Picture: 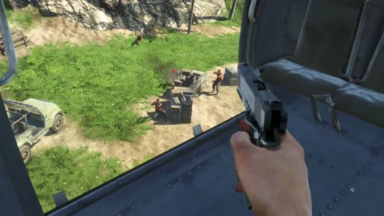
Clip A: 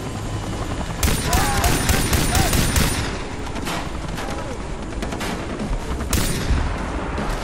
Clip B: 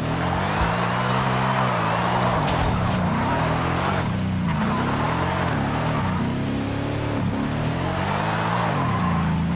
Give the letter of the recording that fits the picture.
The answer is A